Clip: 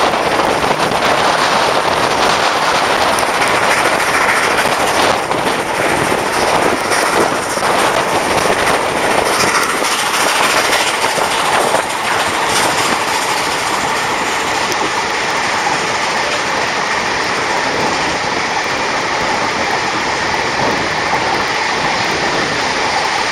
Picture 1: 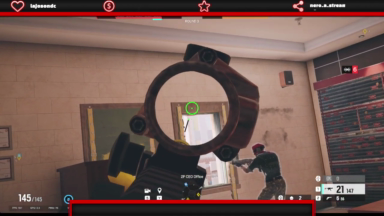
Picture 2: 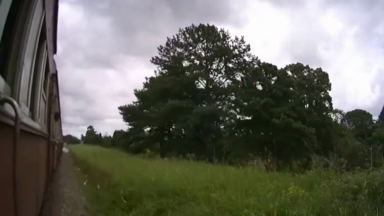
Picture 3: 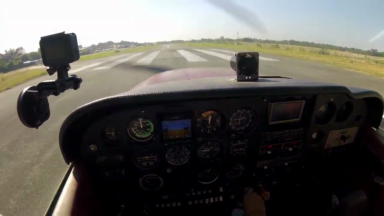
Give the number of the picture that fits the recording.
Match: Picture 2